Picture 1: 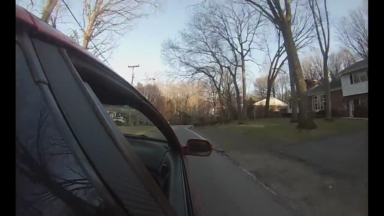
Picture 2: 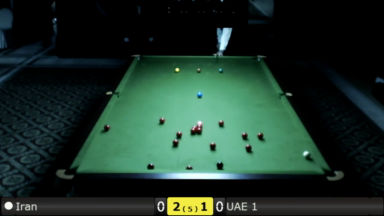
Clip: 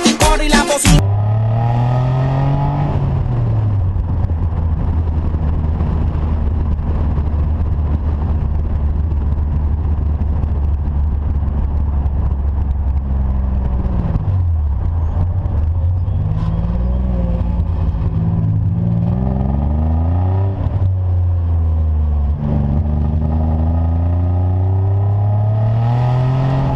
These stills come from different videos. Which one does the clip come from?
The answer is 1